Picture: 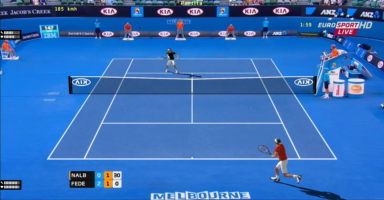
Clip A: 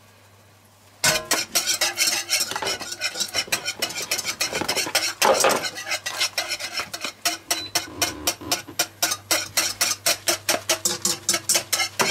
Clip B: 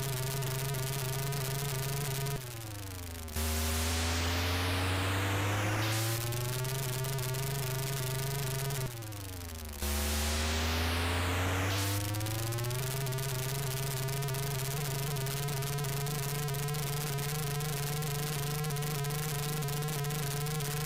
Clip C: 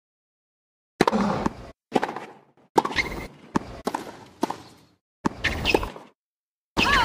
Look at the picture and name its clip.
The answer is C